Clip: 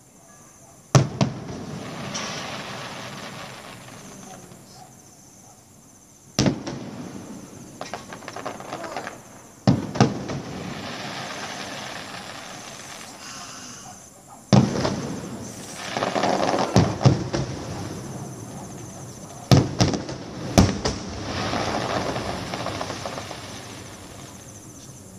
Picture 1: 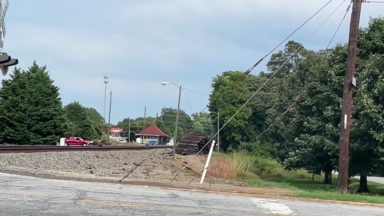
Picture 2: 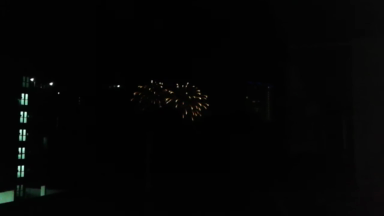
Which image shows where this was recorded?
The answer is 2